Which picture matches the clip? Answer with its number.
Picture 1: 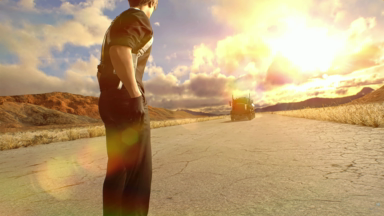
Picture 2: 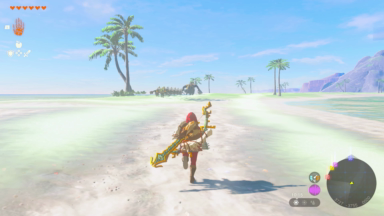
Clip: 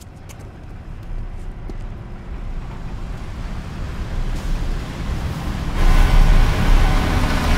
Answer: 1